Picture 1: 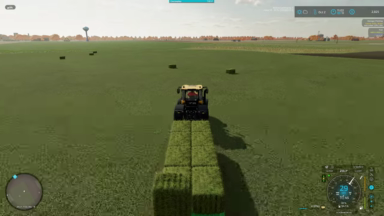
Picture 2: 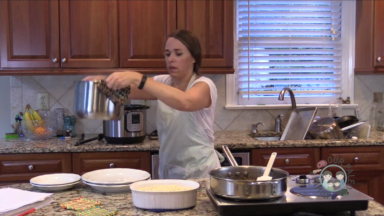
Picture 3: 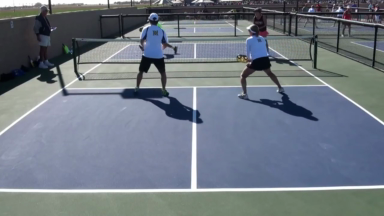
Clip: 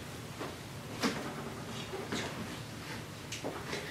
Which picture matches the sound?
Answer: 2